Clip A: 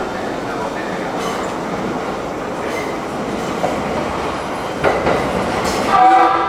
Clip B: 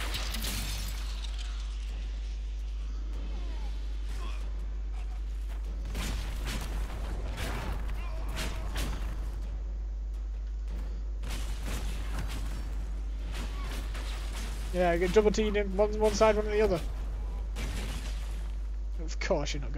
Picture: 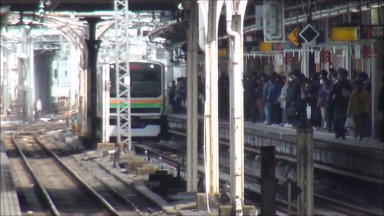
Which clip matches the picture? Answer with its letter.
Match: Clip A